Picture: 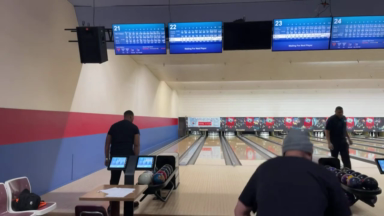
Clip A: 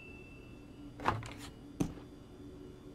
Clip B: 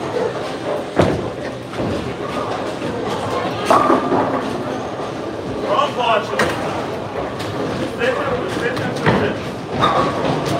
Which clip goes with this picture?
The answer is B